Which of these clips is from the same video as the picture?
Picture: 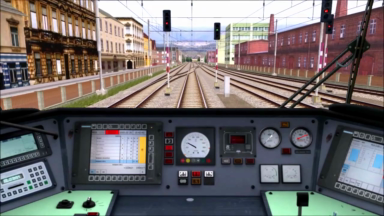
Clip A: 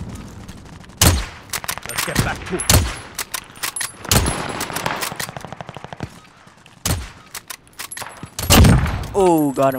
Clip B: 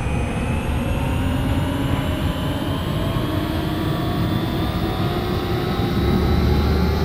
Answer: B